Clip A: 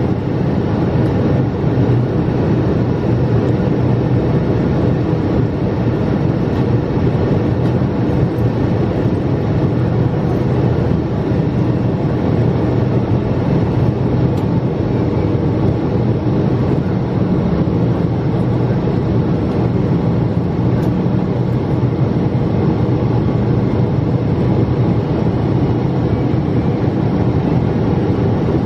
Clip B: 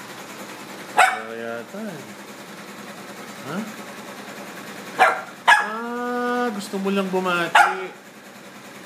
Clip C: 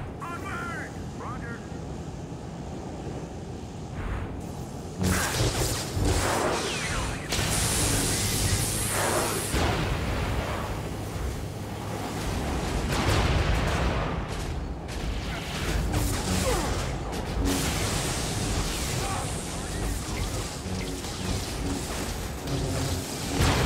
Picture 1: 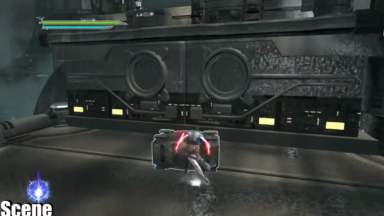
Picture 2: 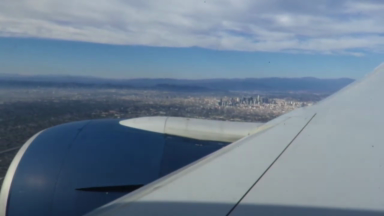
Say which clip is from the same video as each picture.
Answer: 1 C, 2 A